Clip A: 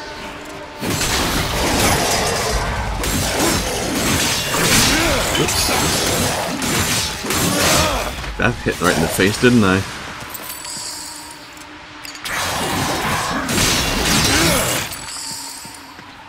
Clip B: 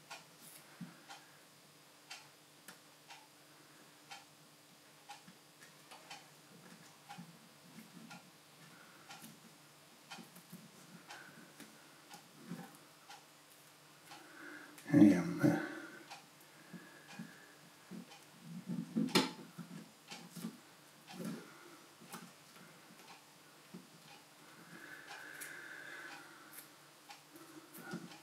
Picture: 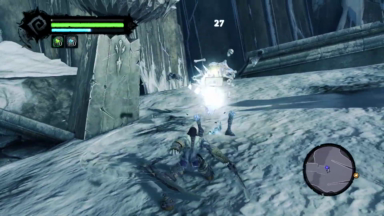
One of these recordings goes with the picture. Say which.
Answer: A